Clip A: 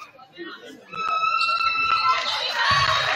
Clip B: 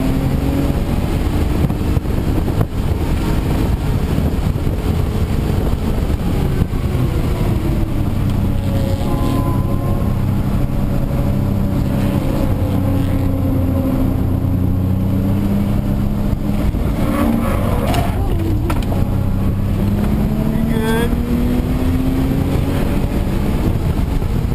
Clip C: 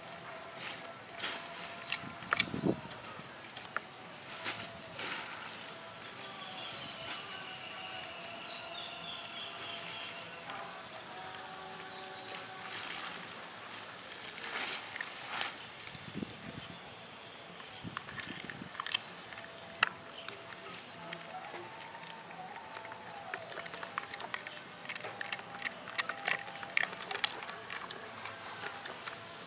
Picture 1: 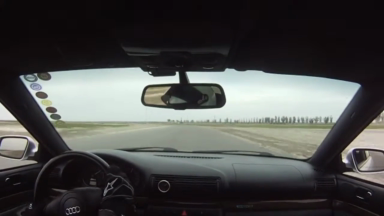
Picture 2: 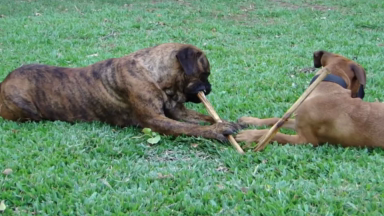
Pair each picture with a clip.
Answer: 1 B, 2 C